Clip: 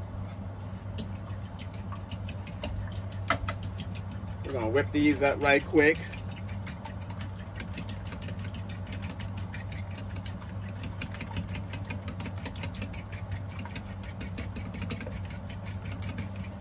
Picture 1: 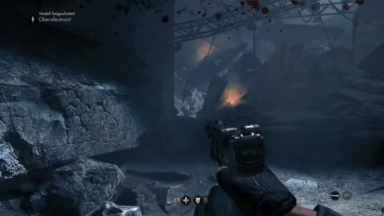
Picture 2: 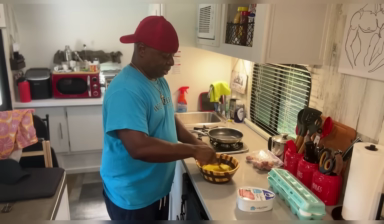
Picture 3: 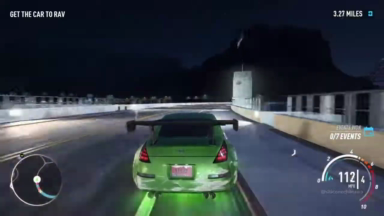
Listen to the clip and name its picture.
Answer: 2